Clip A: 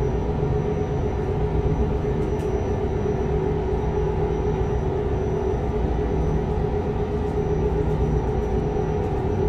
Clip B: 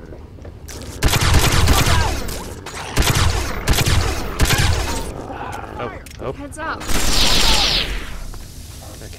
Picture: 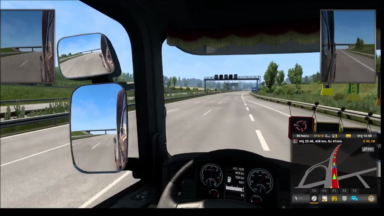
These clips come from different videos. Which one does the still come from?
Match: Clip A